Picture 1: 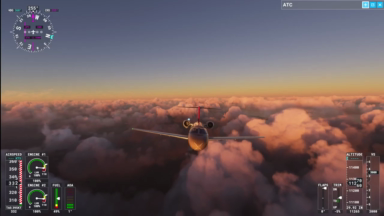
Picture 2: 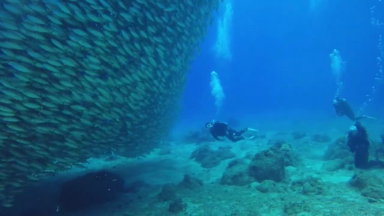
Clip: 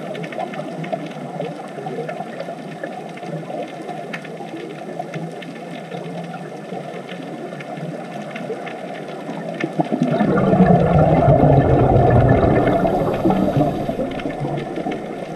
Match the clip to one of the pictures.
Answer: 2